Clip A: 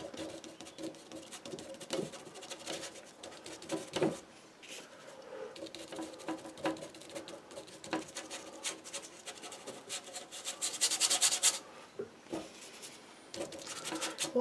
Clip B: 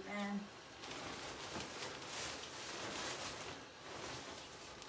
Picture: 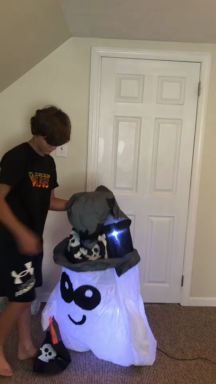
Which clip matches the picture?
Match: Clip B